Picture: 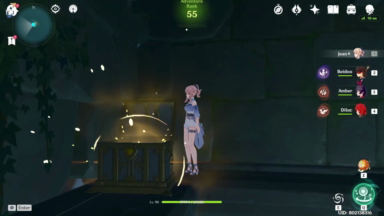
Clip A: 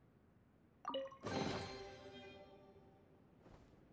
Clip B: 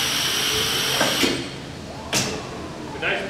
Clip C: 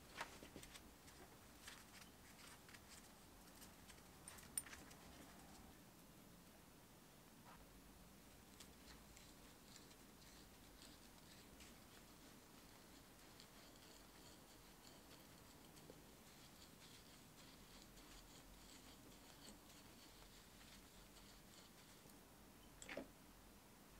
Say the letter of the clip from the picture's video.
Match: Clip A